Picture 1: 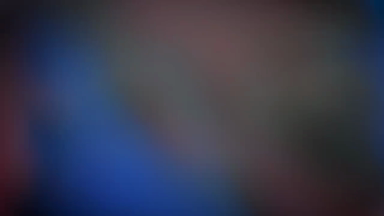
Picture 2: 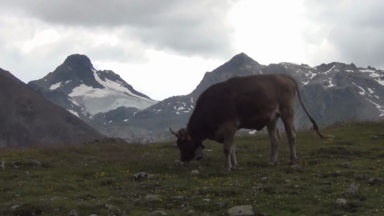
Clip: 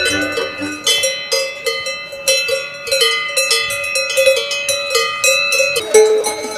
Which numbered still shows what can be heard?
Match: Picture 2